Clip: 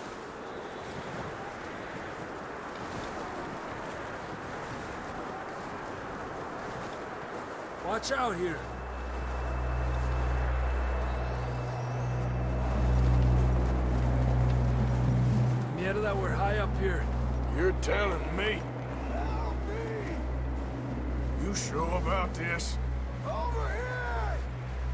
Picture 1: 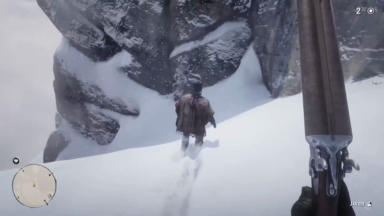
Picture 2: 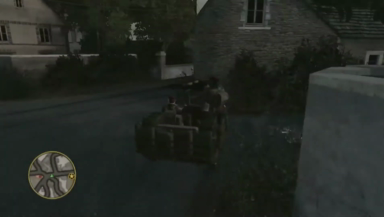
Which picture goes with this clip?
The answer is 1